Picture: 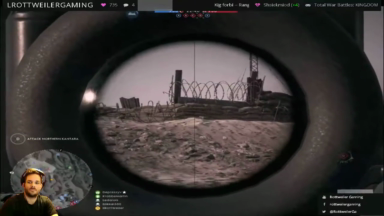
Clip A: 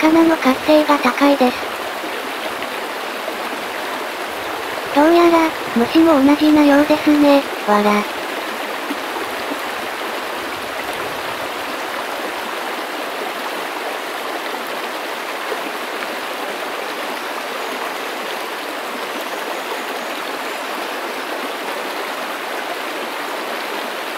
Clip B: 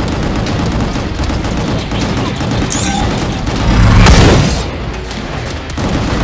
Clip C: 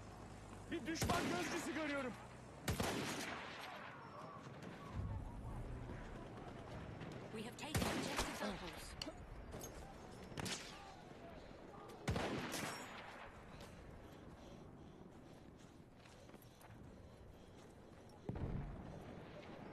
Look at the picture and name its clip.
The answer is C